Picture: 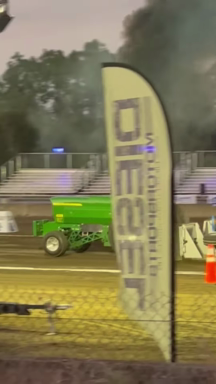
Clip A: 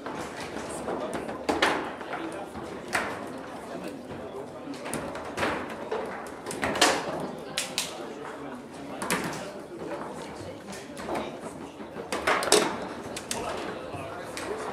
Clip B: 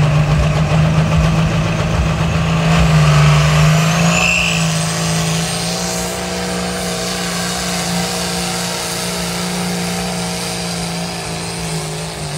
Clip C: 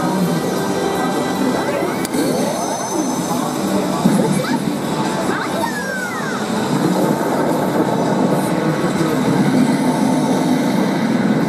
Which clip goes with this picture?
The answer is B